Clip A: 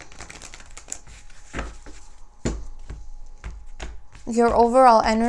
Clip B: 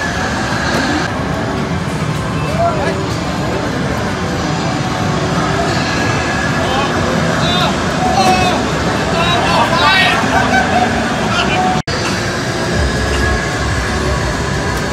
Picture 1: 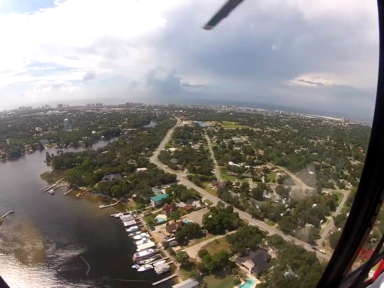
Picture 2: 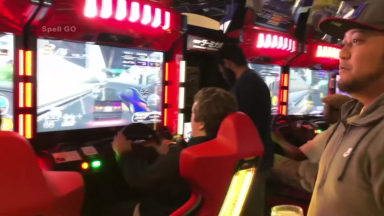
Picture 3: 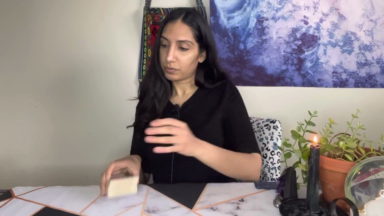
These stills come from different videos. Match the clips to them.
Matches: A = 3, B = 2